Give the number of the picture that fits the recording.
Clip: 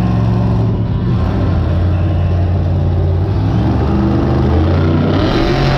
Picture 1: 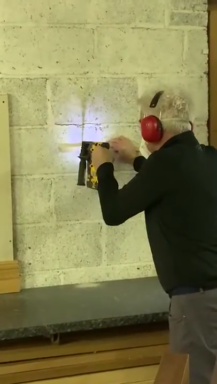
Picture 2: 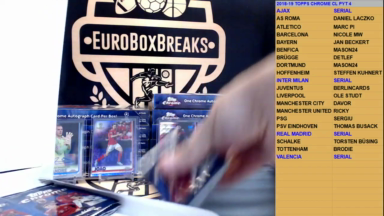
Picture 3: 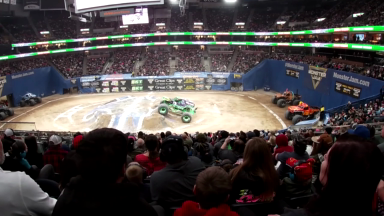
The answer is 3